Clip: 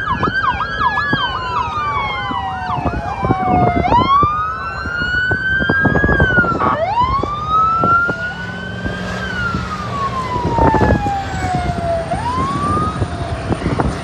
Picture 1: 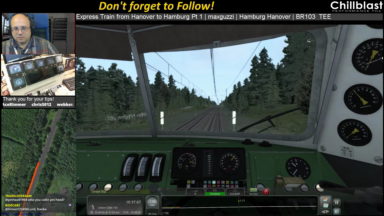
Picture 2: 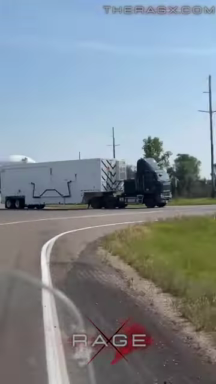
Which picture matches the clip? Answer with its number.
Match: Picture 2